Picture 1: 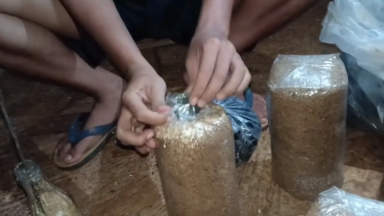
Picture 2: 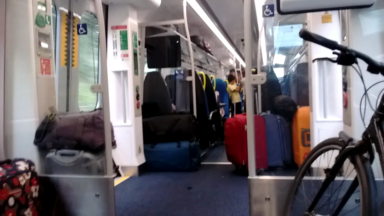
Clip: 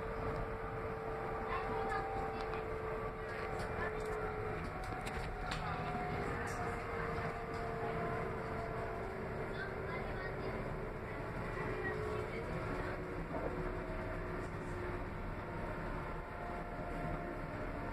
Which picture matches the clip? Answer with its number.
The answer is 2